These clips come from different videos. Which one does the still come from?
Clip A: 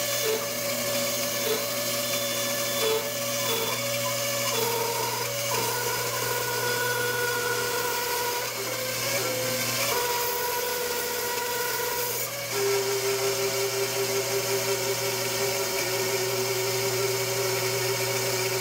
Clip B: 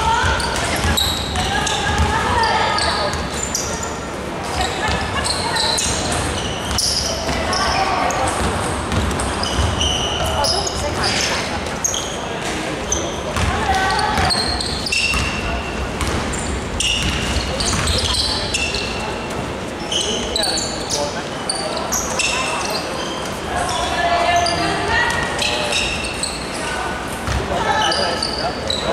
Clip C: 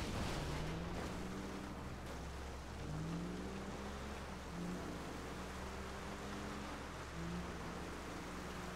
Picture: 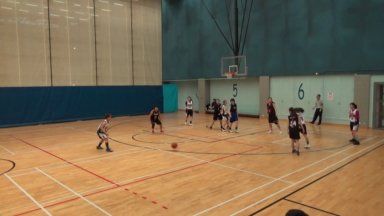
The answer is B